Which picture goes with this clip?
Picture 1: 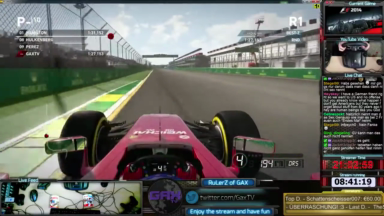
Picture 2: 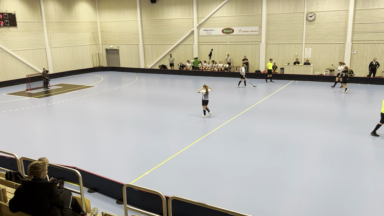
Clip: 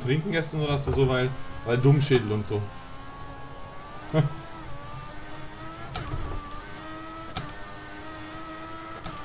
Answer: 1